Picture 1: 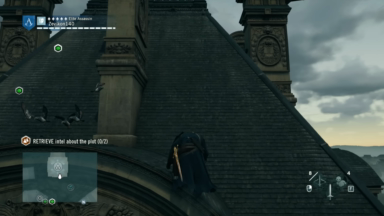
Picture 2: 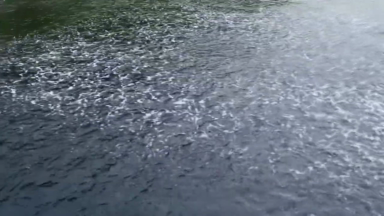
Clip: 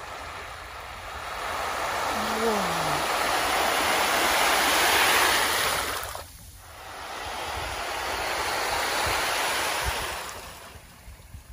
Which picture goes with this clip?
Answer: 2